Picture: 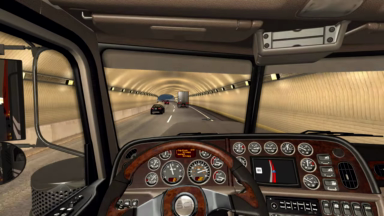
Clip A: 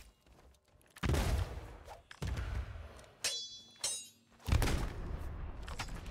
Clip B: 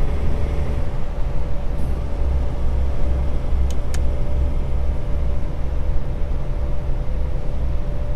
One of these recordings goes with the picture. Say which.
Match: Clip B